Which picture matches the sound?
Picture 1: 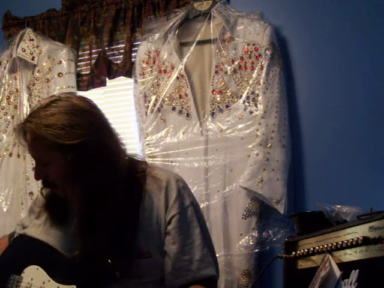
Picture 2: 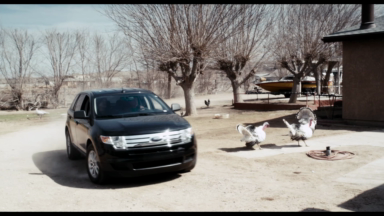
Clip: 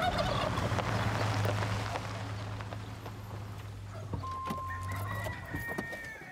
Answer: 2